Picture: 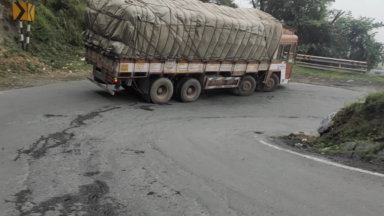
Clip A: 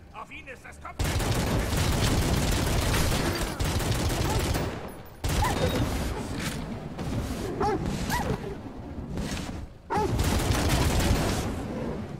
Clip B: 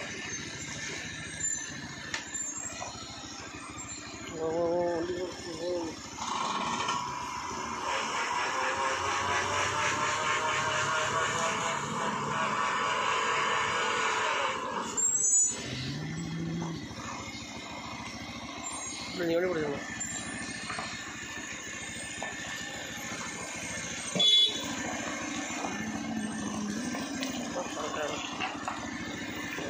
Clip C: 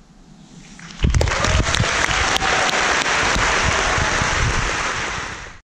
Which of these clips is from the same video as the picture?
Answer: B